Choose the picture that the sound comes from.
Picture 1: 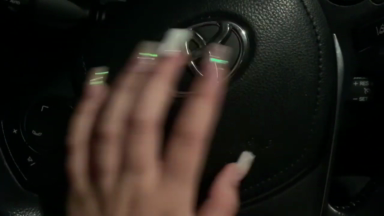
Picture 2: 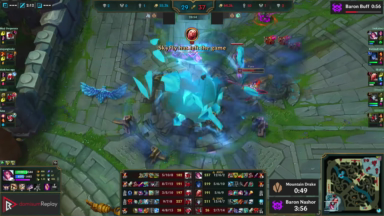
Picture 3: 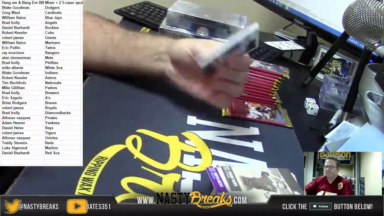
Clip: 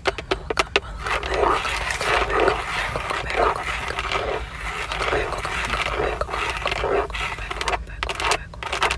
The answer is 1